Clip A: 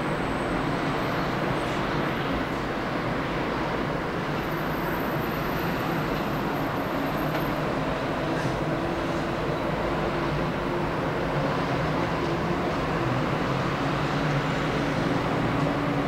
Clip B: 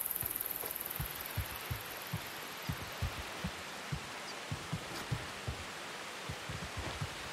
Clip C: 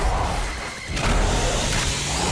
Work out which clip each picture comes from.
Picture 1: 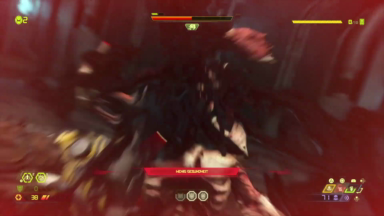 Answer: C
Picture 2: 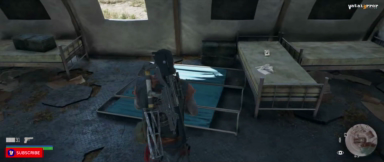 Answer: B